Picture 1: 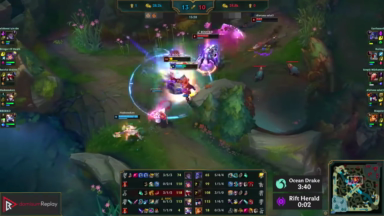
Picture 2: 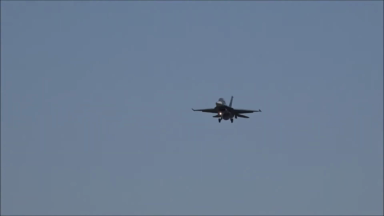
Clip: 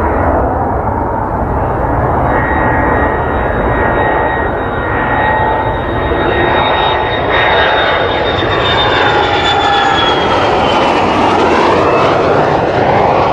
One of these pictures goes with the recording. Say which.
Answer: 2